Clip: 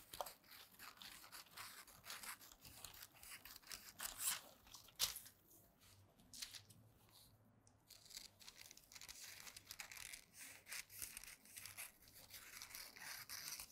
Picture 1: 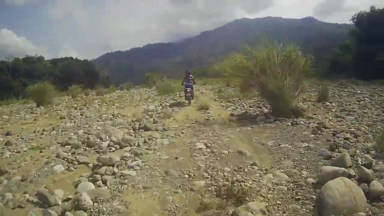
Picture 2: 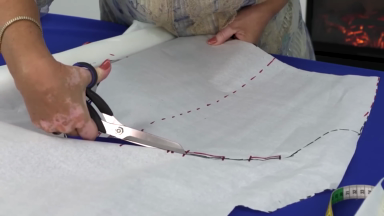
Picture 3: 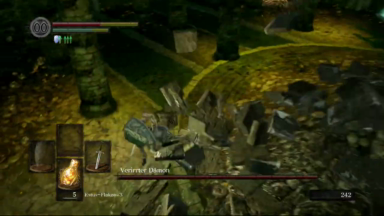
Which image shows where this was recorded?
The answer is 2